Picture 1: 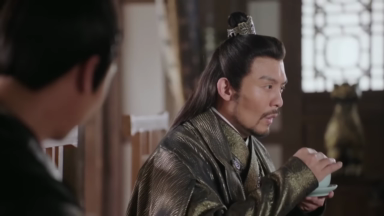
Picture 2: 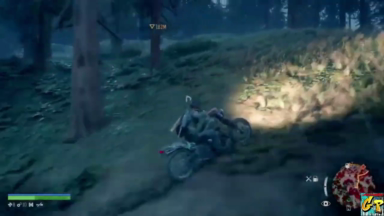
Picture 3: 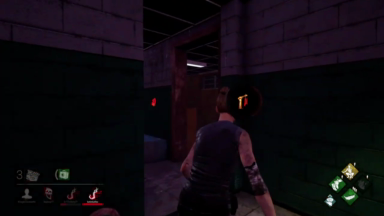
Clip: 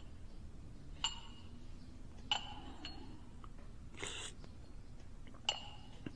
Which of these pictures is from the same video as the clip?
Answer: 1